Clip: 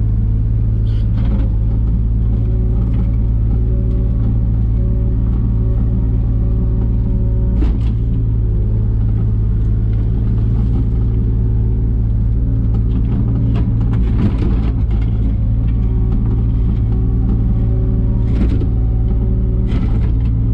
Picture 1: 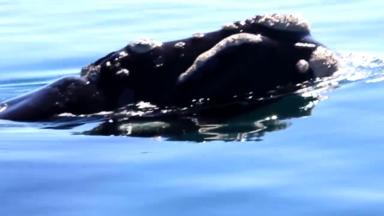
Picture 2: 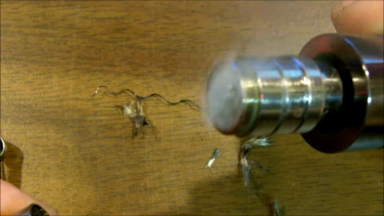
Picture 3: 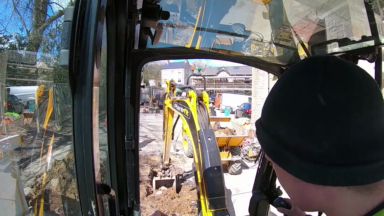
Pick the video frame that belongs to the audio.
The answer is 3